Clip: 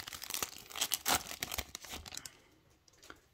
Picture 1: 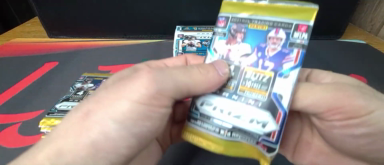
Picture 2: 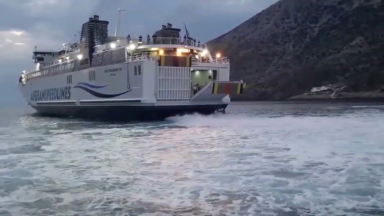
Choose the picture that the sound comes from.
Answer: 1